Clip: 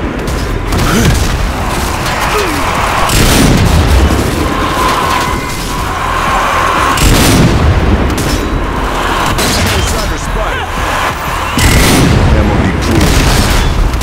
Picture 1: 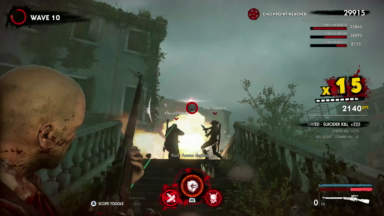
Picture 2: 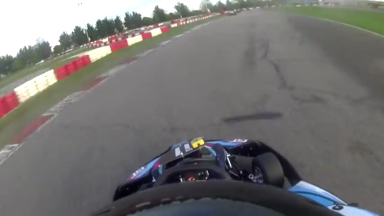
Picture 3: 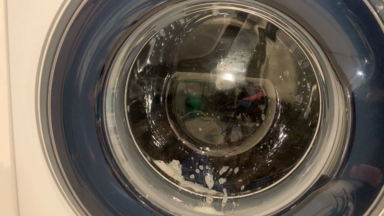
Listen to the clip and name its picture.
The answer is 1